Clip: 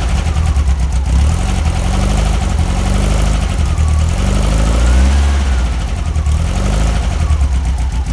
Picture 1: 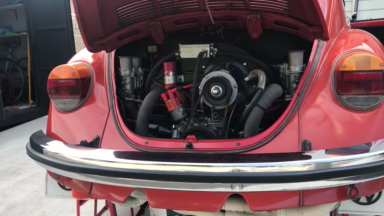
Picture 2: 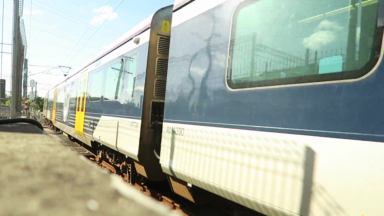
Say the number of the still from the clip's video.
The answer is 1